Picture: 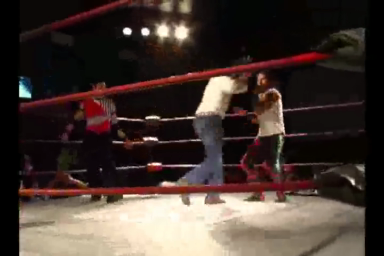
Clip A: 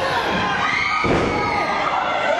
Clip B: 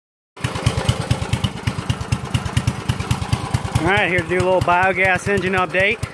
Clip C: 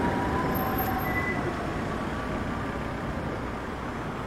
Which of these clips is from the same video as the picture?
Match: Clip A